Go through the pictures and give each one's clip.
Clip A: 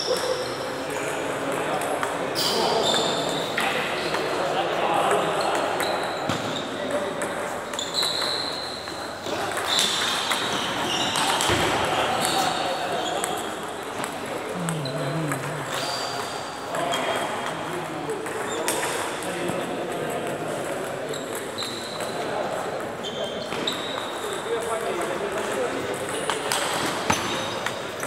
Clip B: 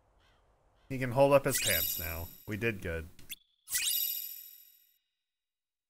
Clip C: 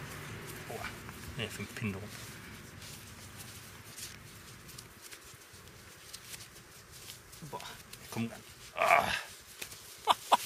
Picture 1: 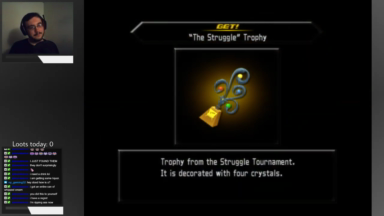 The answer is B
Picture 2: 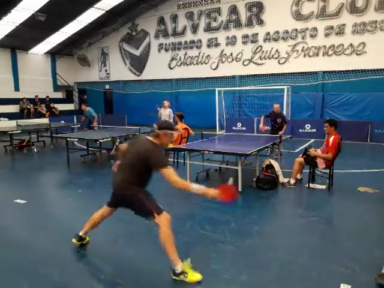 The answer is A